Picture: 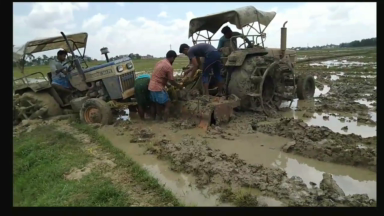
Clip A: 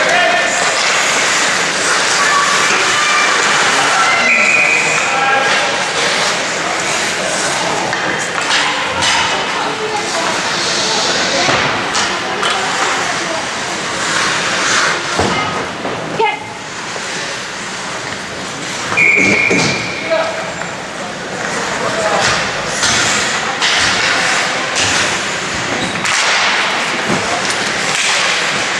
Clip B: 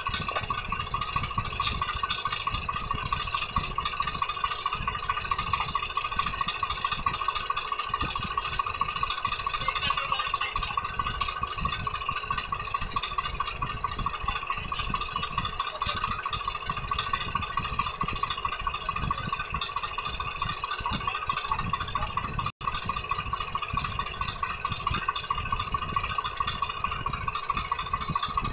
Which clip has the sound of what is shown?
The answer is B